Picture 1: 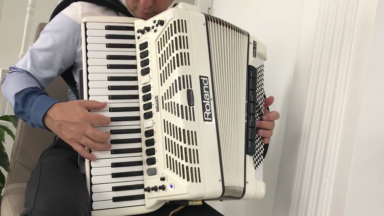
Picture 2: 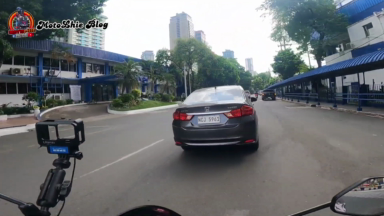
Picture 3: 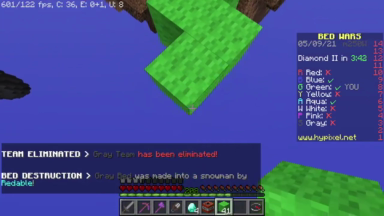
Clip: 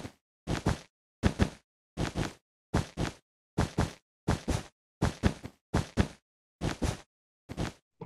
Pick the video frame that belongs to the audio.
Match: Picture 3